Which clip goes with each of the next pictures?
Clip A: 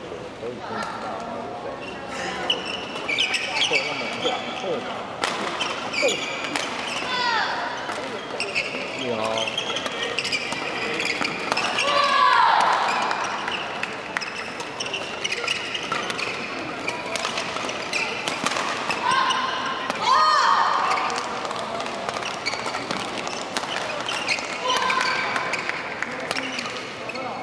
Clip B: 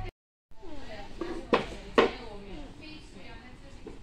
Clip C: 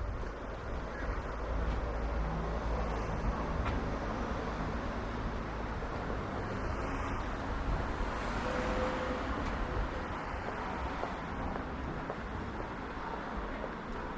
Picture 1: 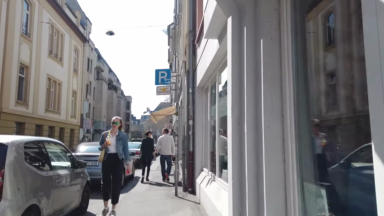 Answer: C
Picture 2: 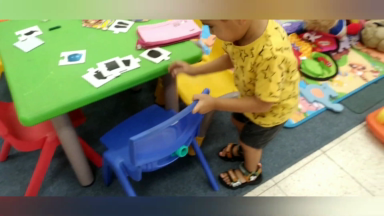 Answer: B